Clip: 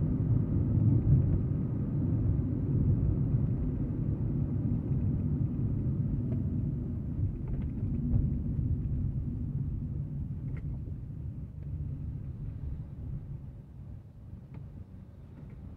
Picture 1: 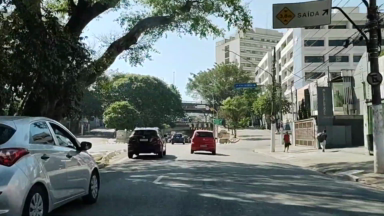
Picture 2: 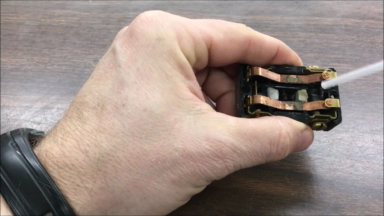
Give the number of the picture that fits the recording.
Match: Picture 1